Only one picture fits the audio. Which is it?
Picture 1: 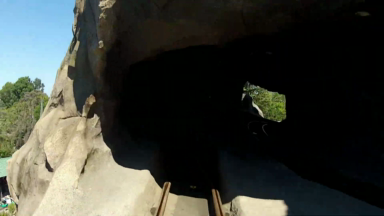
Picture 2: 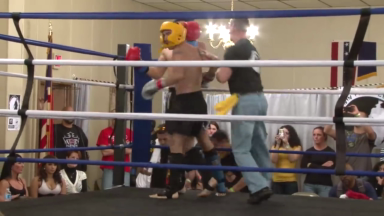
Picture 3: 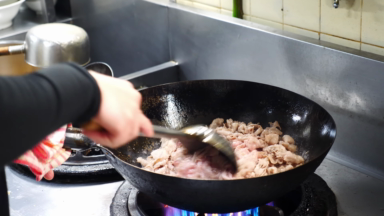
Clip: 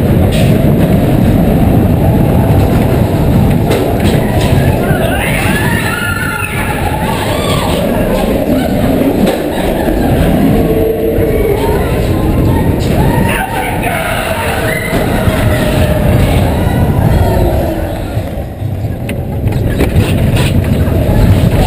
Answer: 1